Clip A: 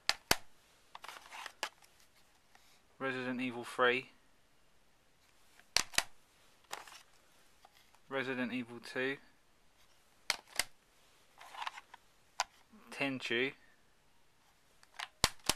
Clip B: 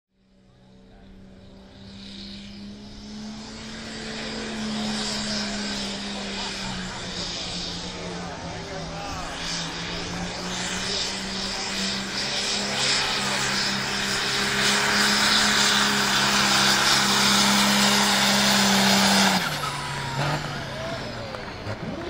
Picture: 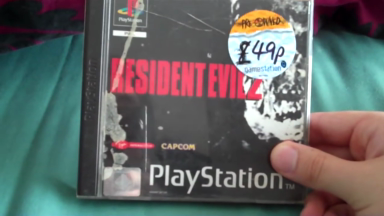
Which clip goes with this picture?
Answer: A